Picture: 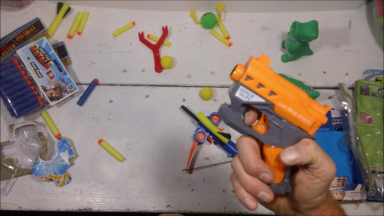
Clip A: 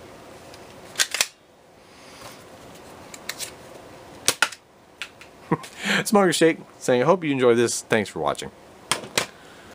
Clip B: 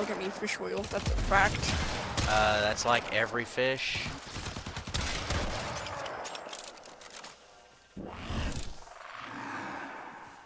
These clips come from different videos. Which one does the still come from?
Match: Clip A